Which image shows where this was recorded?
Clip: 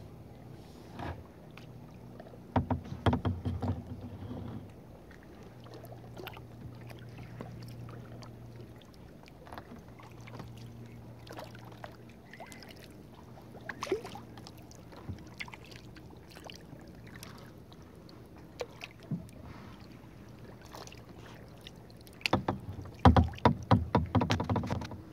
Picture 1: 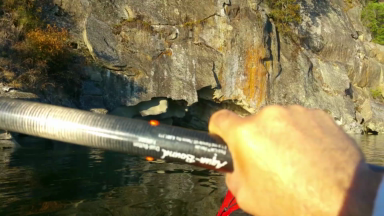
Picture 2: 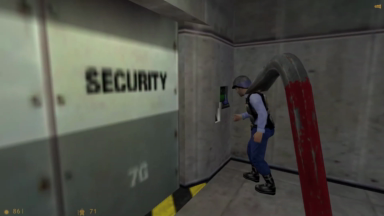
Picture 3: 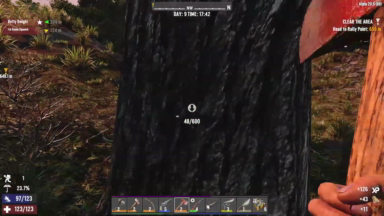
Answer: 1